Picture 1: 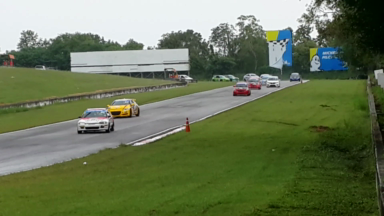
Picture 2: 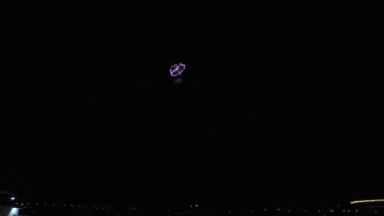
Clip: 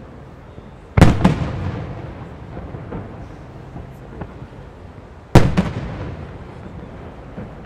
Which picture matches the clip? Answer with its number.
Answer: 2